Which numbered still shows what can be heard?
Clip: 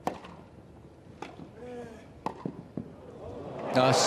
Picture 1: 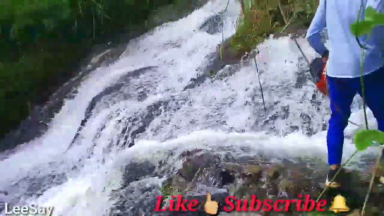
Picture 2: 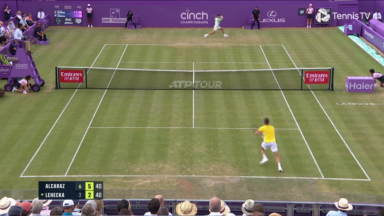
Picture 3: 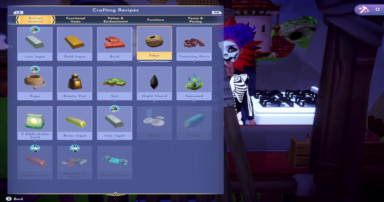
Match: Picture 2